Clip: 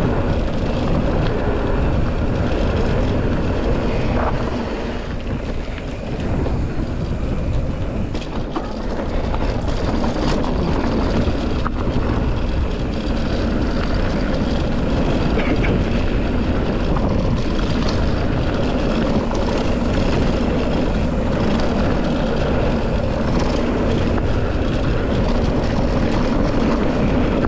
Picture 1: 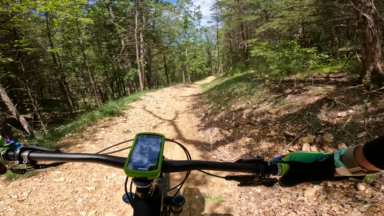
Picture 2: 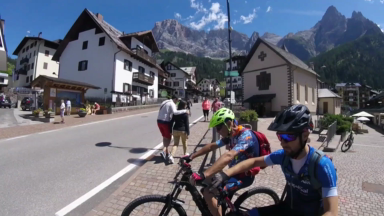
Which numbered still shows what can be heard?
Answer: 1